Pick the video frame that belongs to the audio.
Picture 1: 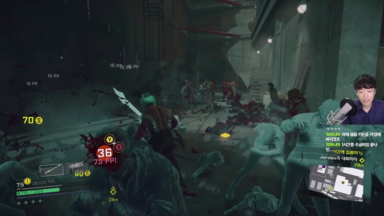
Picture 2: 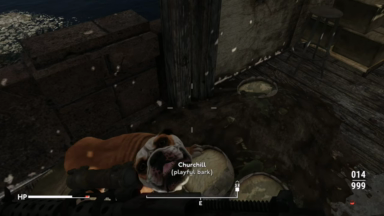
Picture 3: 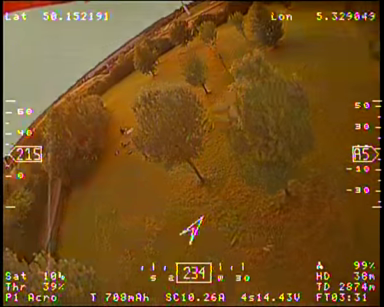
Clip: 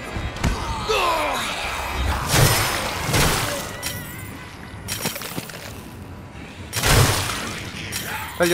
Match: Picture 1